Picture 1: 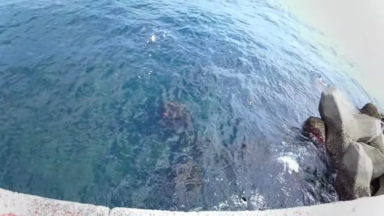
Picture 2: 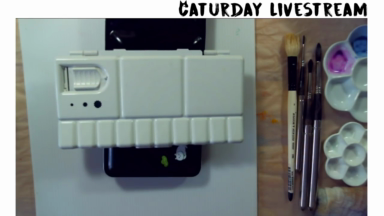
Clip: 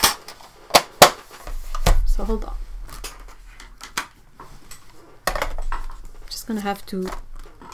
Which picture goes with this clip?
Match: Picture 2